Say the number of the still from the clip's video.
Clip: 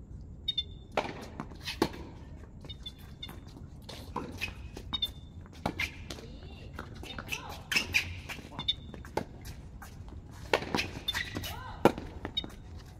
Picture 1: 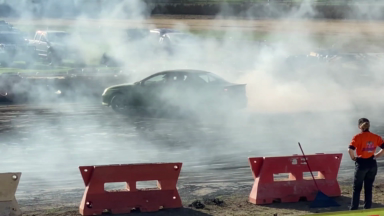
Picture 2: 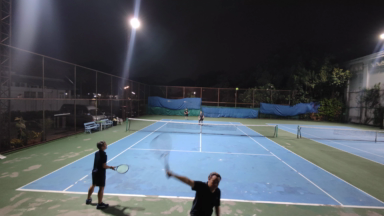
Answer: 2